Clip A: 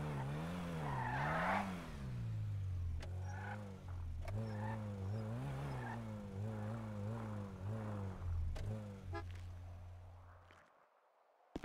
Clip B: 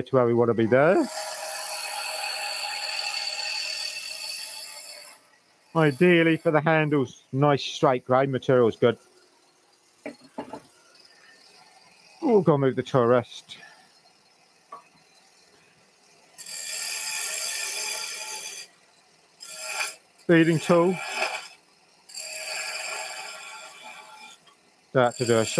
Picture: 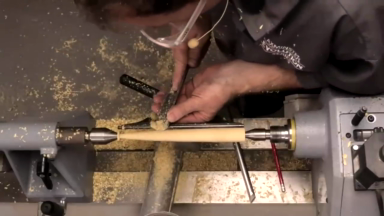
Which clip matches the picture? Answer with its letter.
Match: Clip B